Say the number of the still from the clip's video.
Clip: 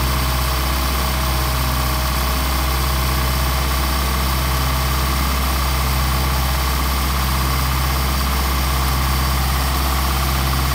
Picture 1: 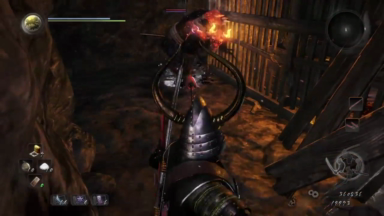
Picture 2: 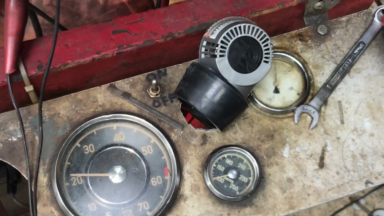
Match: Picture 2